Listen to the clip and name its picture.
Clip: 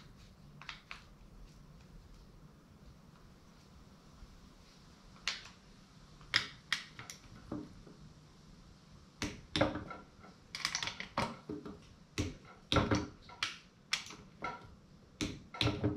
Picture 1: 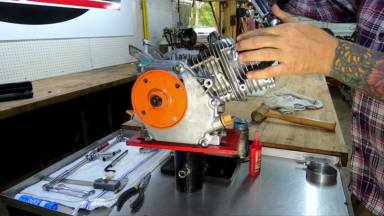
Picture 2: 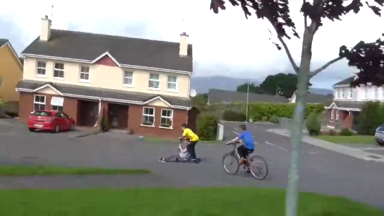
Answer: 1